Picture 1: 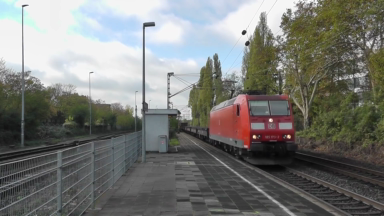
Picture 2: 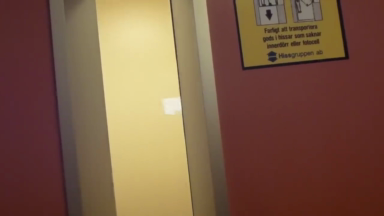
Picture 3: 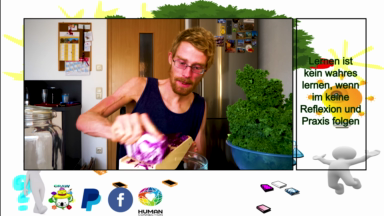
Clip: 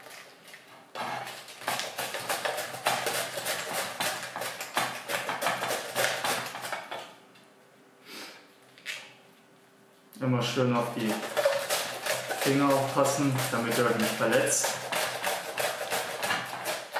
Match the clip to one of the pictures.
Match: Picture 3